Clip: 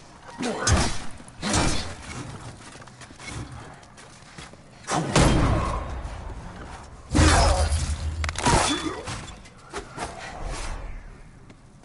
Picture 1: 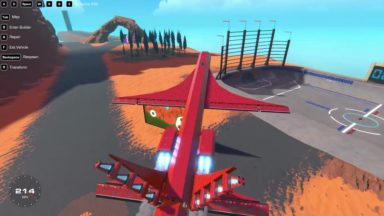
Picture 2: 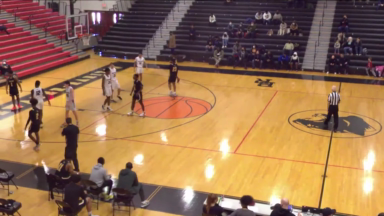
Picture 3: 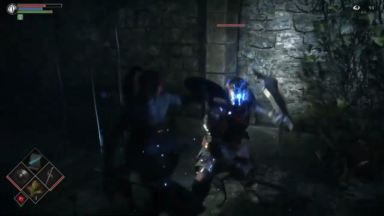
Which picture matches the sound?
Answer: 3